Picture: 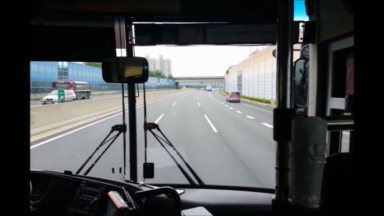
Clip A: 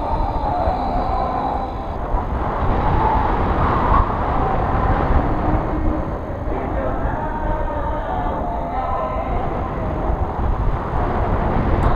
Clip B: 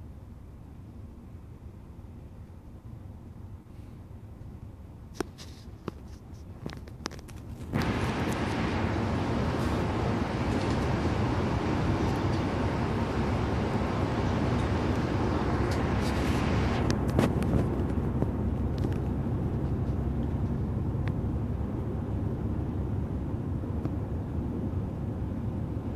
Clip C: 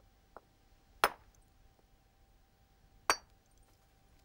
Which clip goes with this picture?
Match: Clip B